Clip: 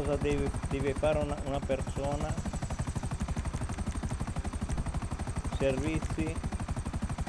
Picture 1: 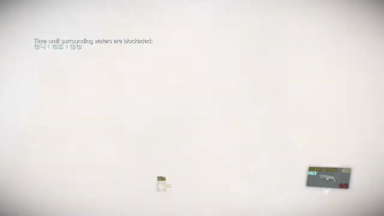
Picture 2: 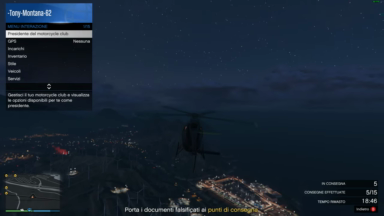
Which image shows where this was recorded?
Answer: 2